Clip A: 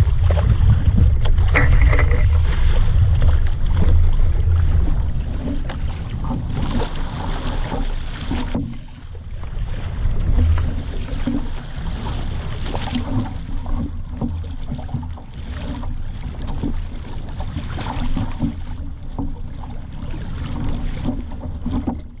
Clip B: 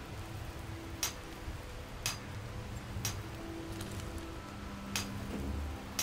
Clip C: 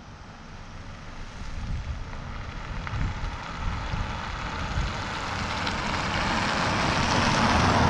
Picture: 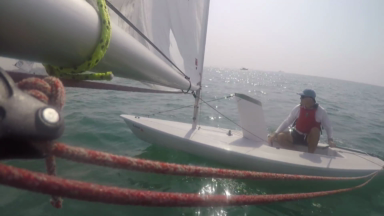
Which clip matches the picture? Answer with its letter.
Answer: A